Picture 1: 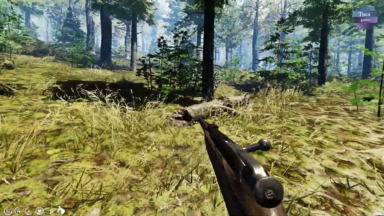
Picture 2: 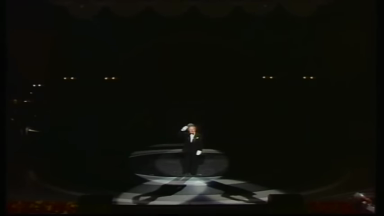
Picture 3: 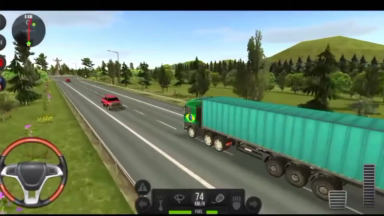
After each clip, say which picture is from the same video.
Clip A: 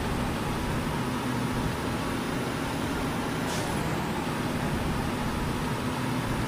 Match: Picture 3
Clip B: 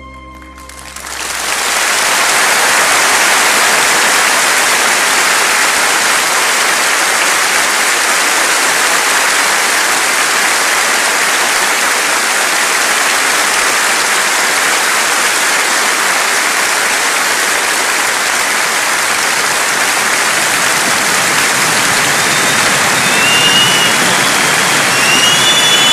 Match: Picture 2